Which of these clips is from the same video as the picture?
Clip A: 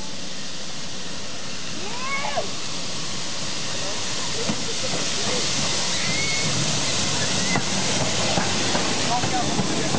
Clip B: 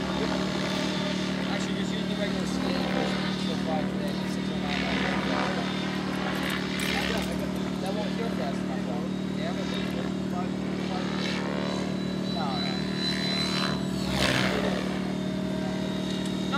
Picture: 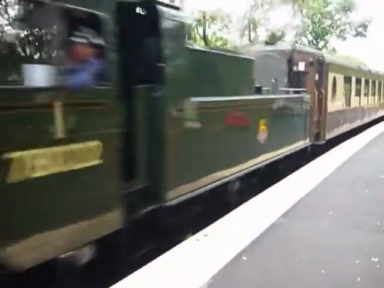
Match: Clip A